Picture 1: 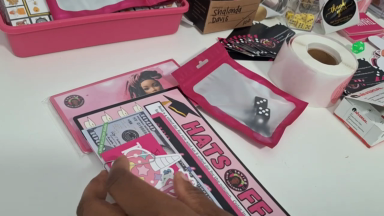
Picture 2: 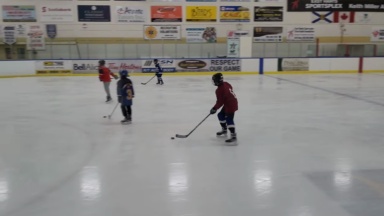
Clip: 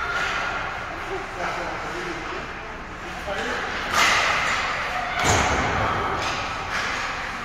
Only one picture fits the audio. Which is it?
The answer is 2